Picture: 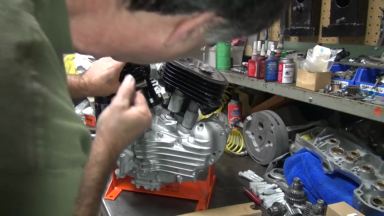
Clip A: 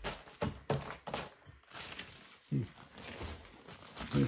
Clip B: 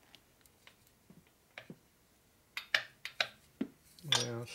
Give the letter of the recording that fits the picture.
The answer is B